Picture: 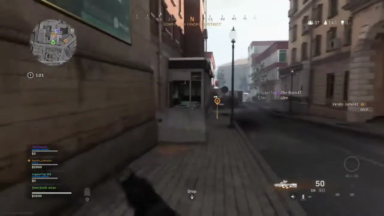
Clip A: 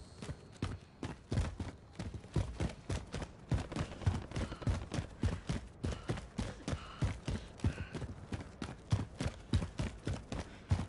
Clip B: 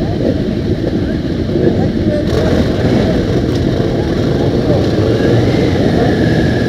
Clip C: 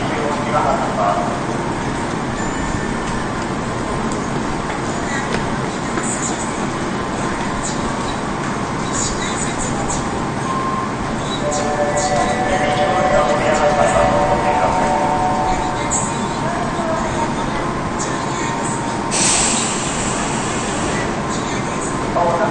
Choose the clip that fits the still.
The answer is A